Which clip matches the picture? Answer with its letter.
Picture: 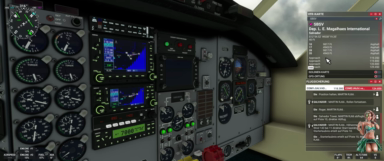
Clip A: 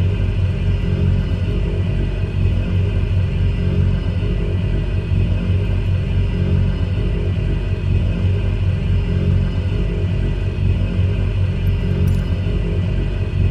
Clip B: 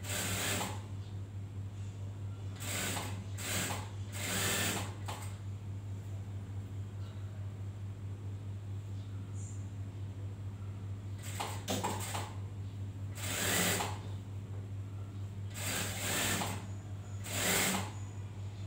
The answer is A